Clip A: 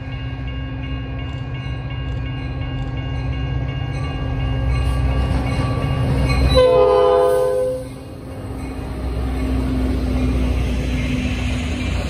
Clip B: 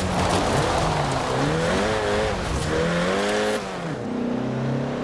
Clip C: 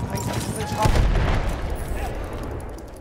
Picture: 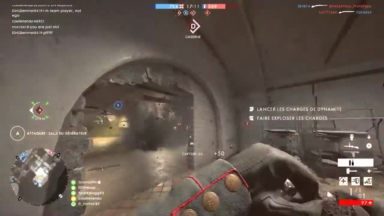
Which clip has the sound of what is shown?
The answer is C